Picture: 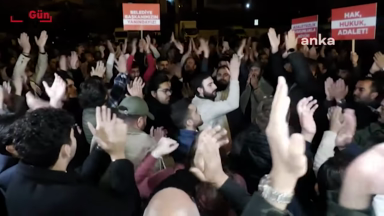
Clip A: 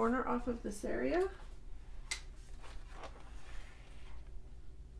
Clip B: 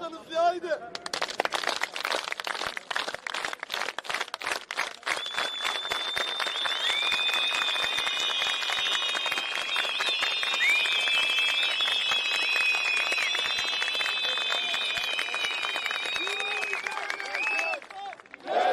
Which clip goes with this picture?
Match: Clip B